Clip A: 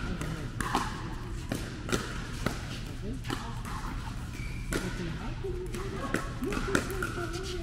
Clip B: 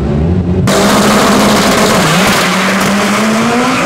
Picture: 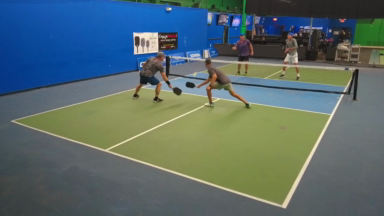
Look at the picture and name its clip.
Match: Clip A